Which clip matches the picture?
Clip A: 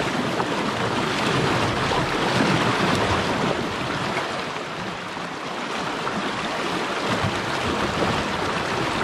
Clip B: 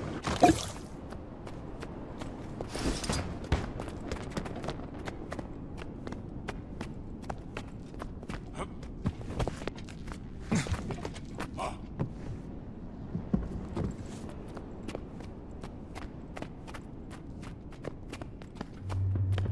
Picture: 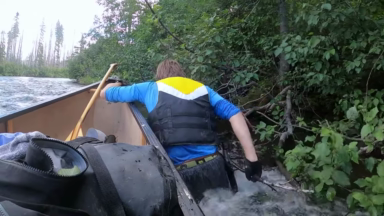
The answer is A